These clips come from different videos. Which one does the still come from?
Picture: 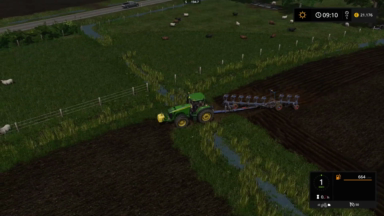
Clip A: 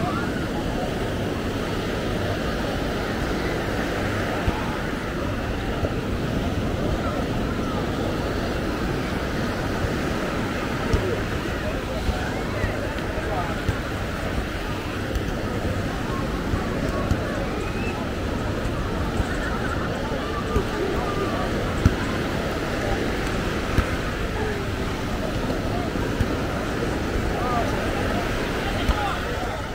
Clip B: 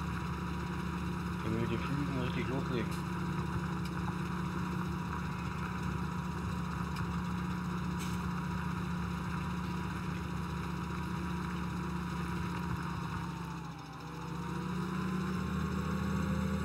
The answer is B